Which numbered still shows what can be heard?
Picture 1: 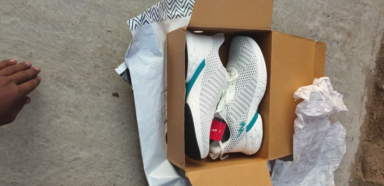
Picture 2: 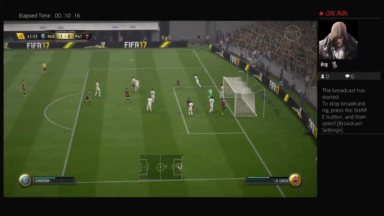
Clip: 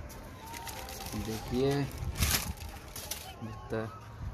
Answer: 1